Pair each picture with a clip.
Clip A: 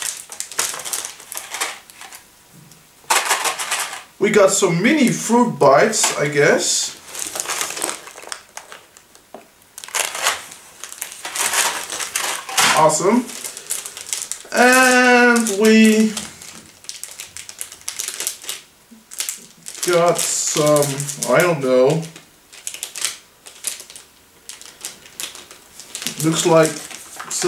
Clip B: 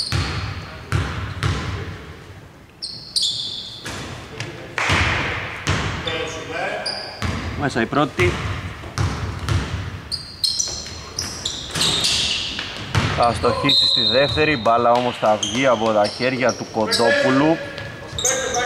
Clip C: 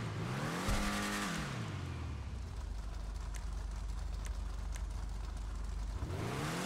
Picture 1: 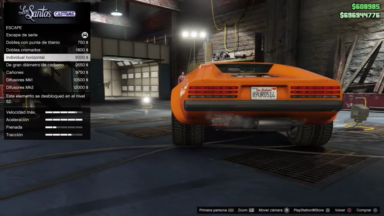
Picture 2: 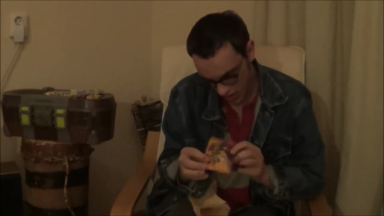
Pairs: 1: C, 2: A